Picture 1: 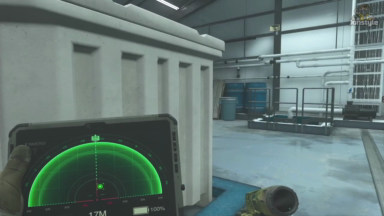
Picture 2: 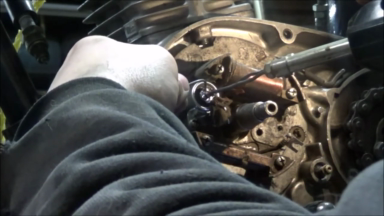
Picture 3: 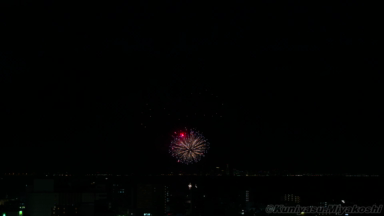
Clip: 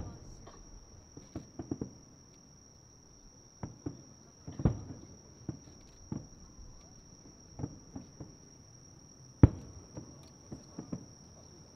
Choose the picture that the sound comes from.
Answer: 3